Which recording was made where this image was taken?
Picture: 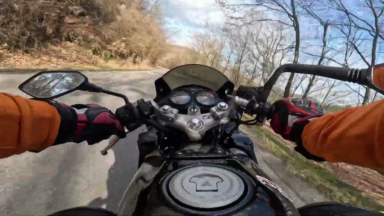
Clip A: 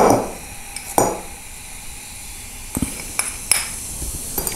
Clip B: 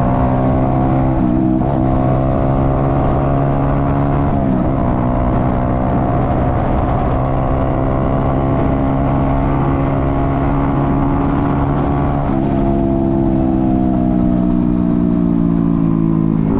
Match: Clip B